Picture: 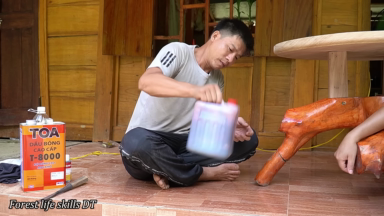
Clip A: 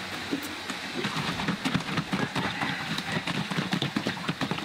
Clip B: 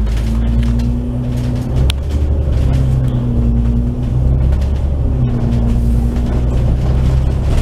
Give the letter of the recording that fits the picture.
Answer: A